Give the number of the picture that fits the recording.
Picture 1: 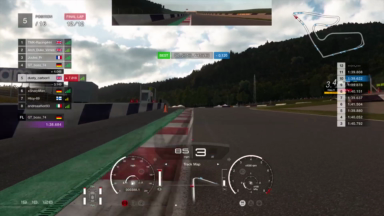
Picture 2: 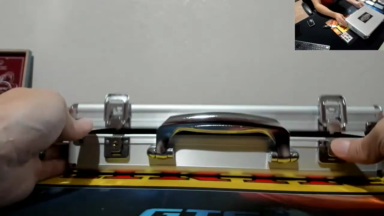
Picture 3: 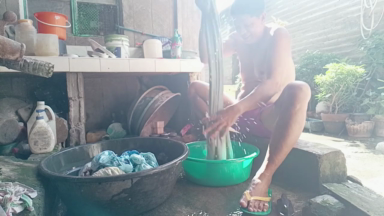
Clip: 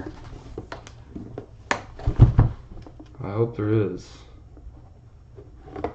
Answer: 2